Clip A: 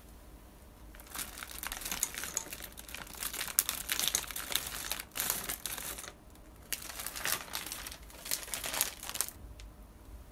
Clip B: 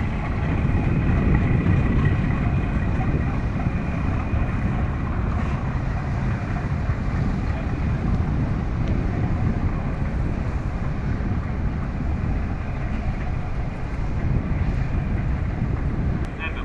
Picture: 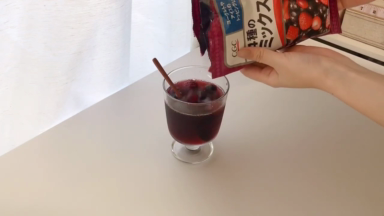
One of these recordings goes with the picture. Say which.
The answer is A